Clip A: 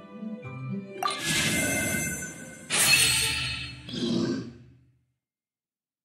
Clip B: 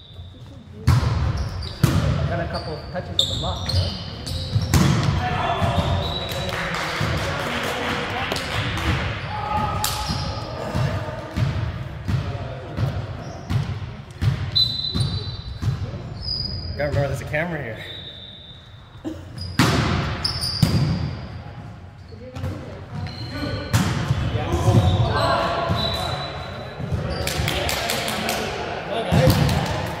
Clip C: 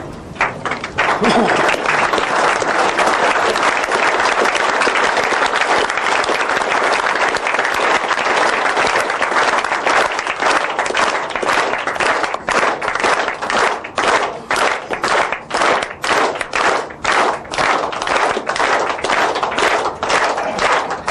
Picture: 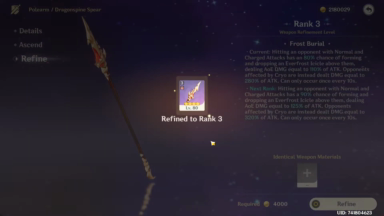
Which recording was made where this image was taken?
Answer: A